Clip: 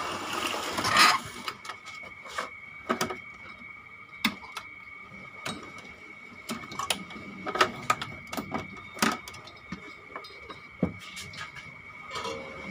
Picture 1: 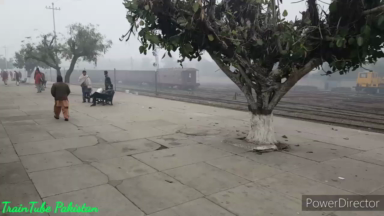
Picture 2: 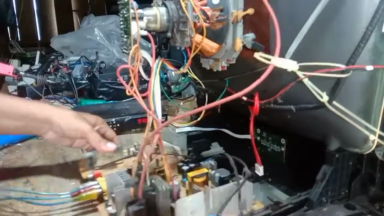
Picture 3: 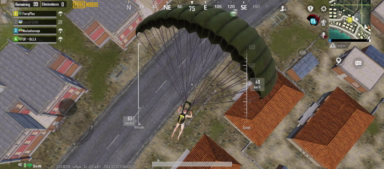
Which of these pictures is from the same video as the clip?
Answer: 2